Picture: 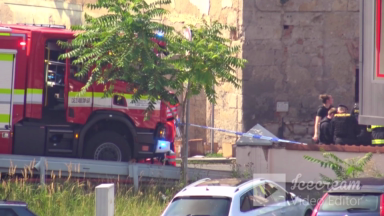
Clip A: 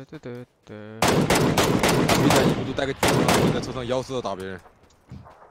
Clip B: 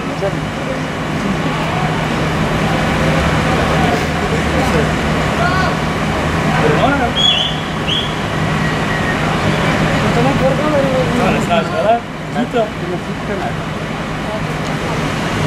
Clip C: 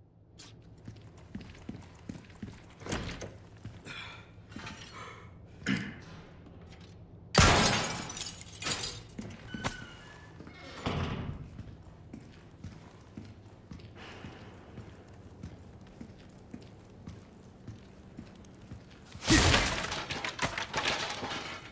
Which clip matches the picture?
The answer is B